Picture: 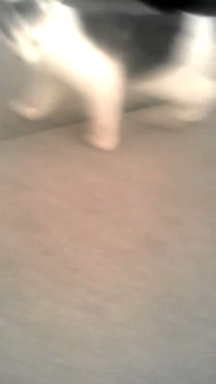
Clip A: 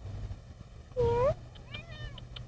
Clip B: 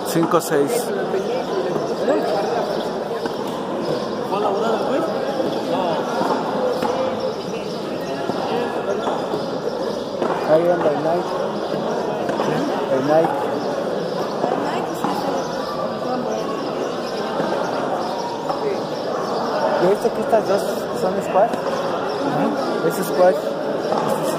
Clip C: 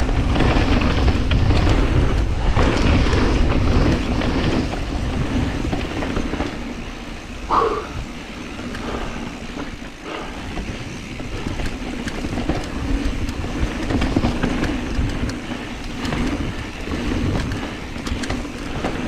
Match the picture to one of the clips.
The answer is A